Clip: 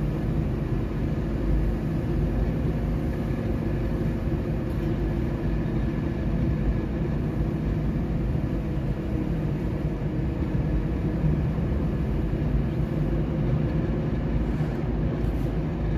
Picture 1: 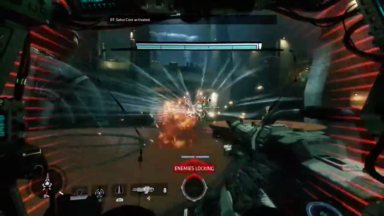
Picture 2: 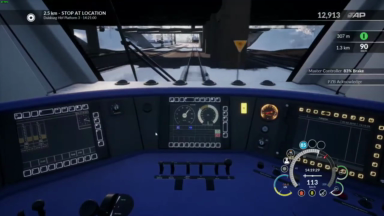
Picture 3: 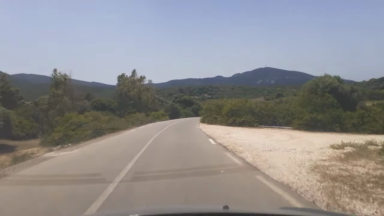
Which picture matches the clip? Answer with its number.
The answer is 3